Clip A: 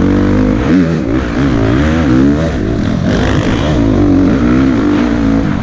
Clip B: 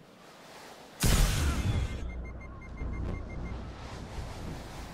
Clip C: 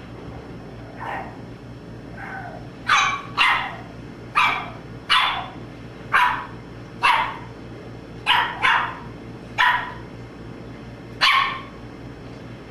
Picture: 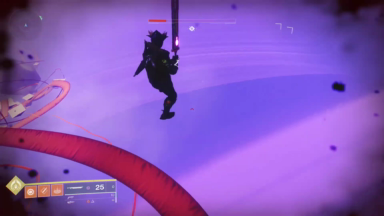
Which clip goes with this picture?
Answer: B